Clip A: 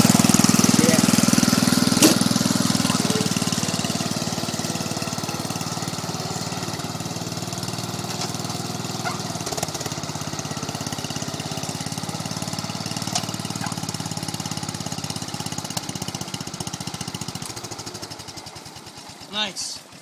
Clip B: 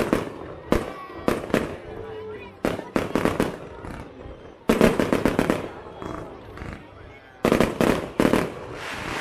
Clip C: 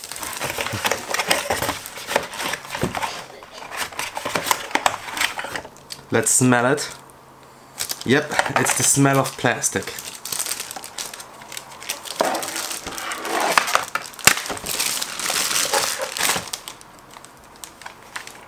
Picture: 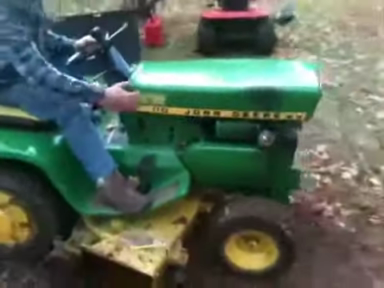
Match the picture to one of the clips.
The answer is A